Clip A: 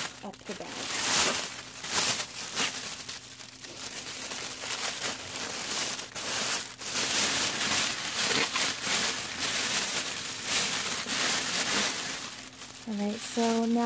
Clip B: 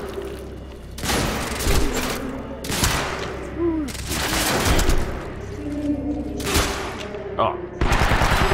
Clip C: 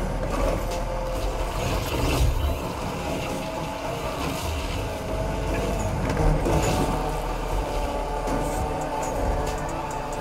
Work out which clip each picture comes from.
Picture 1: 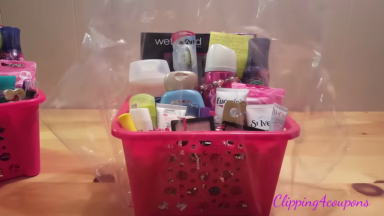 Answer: A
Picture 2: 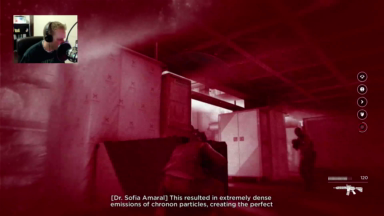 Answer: B